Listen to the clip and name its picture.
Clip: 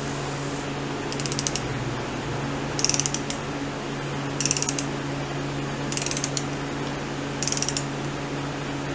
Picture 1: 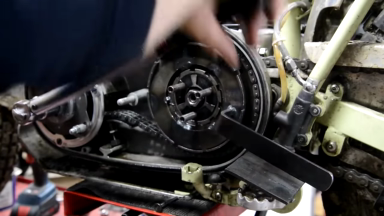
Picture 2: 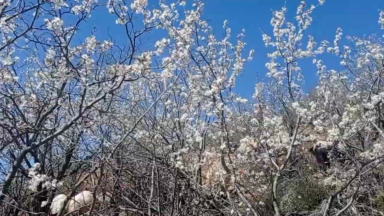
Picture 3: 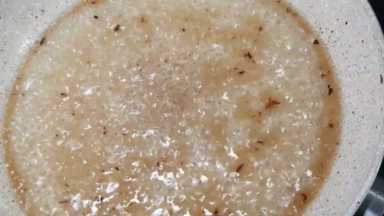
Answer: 1